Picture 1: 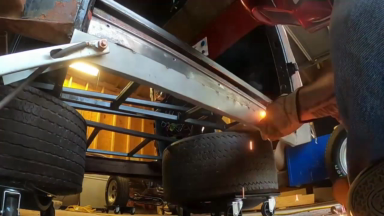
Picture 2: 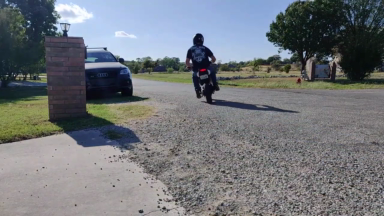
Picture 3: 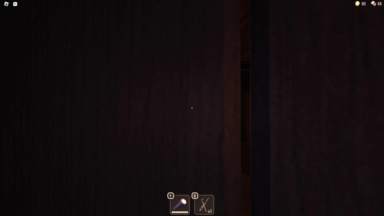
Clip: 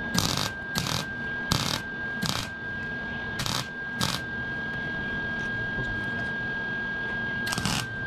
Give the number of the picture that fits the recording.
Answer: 1